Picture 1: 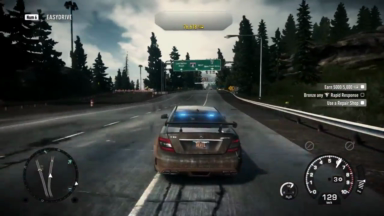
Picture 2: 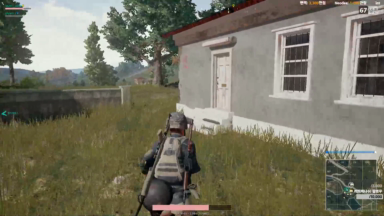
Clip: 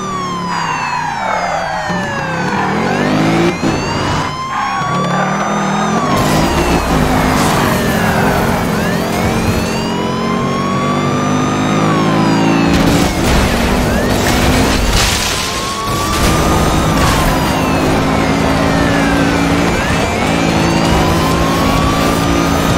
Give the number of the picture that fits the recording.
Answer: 1